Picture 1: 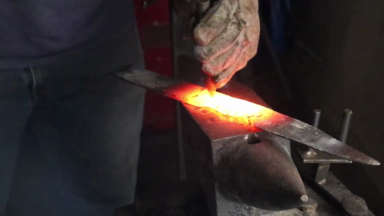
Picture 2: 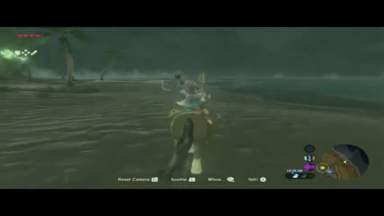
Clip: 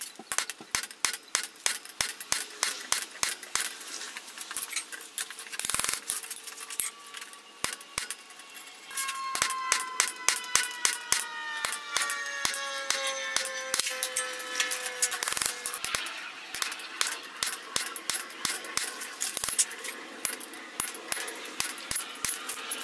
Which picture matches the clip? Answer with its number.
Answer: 1